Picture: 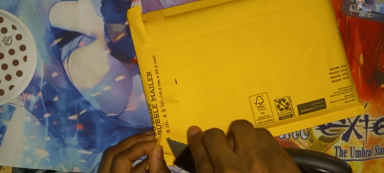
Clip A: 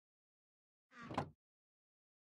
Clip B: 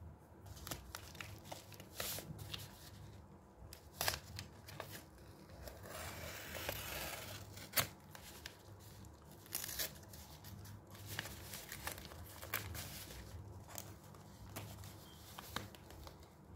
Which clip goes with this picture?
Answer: B